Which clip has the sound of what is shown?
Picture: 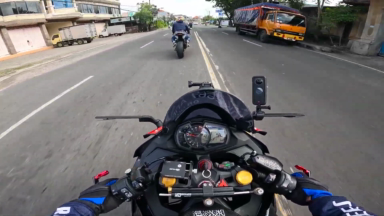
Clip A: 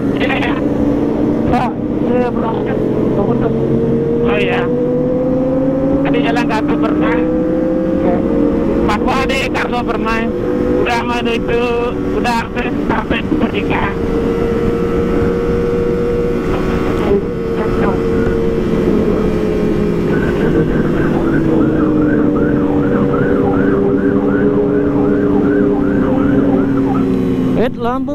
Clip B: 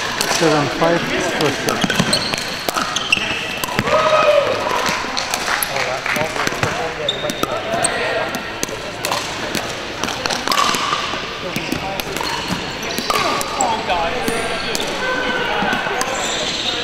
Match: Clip A